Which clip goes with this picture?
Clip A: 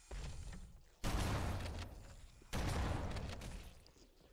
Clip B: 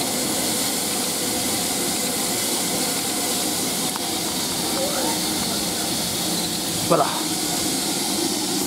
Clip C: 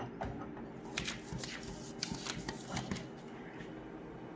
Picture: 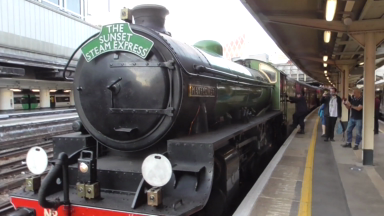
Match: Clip B